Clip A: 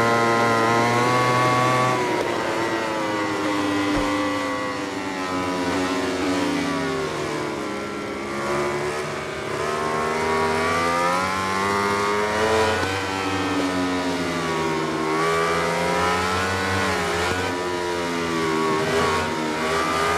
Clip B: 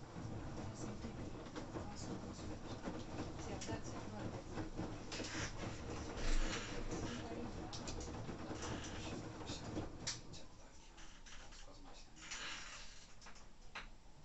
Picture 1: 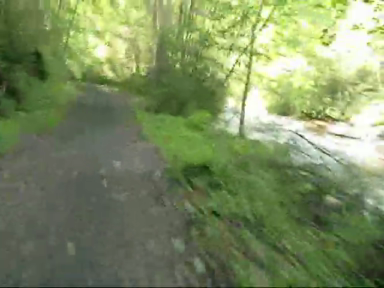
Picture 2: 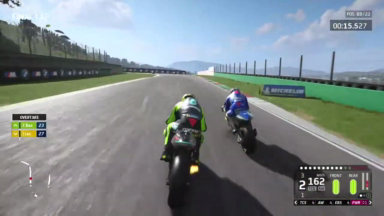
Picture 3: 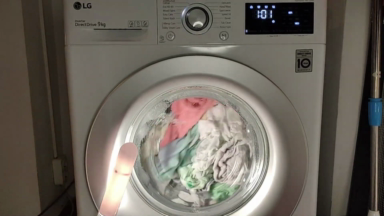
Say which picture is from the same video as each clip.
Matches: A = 2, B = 3